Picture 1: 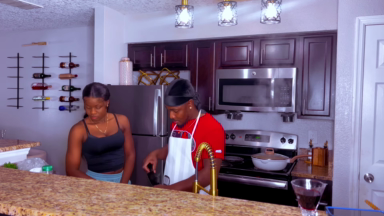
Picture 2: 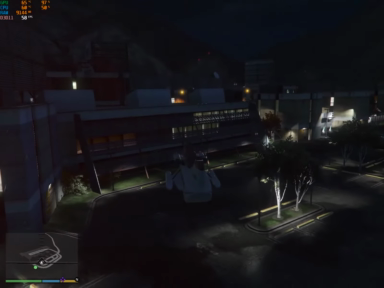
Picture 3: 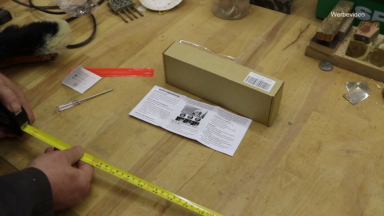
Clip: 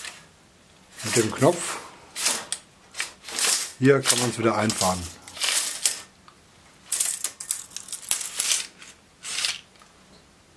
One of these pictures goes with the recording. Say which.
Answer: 3